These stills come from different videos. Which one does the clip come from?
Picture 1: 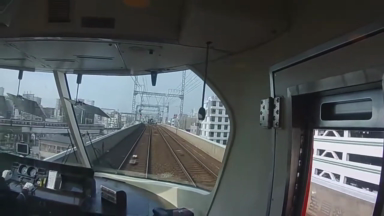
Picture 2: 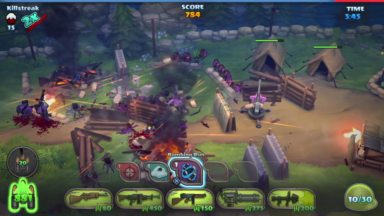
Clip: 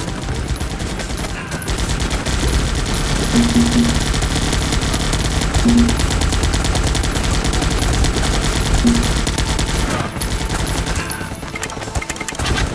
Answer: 2